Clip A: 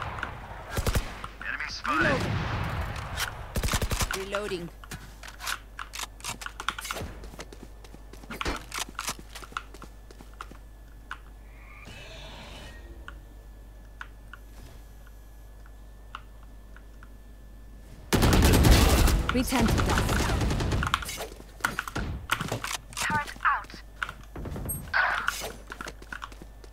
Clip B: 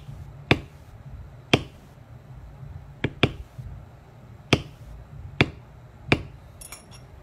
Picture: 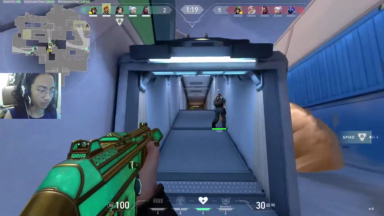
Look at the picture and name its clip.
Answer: A